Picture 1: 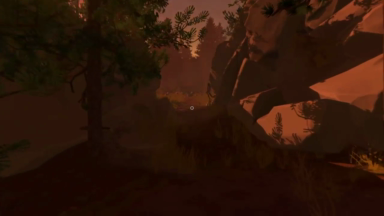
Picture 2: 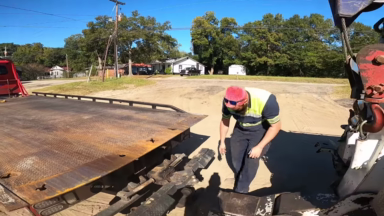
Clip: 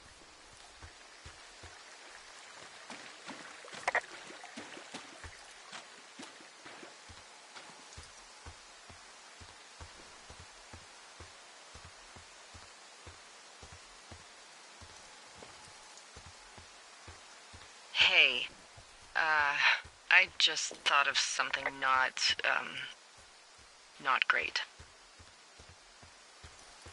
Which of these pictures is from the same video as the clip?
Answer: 1